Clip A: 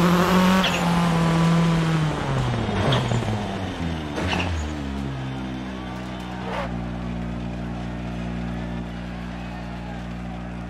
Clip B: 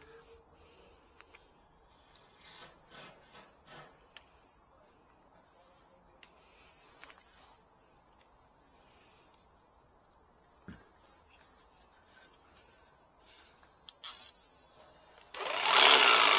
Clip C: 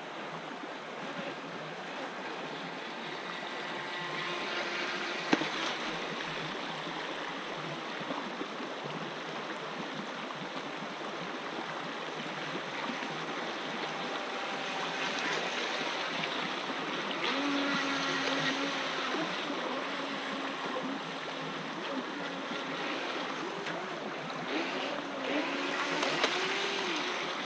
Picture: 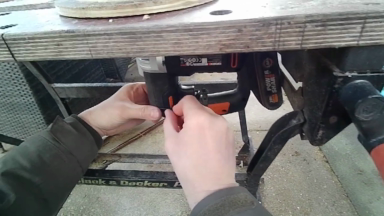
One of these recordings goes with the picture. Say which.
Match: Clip B